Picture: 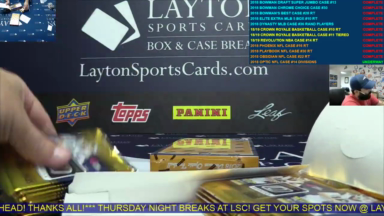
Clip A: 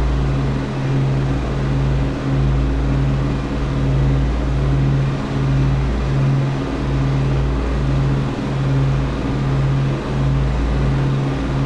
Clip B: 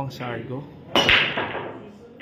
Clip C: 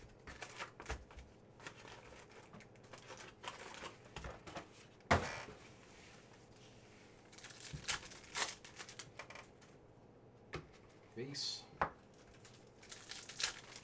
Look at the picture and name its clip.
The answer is C